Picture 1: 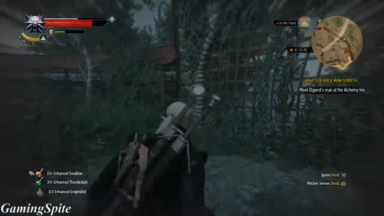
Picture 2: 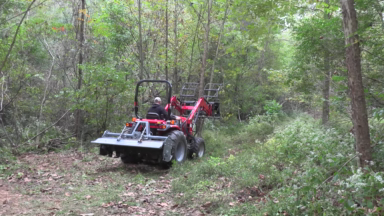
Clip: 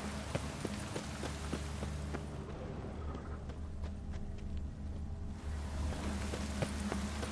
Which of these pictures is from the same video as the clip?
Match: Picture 1